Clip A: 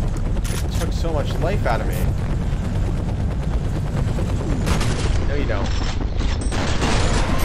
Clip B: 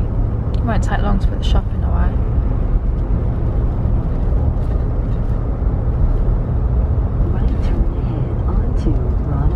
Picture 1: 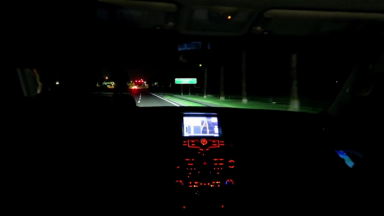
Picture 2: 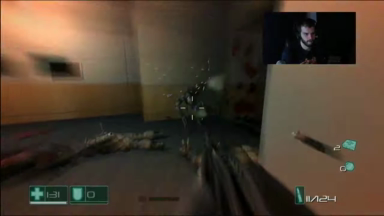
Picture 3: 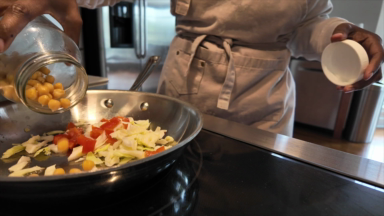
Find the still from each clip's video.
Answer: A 2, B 1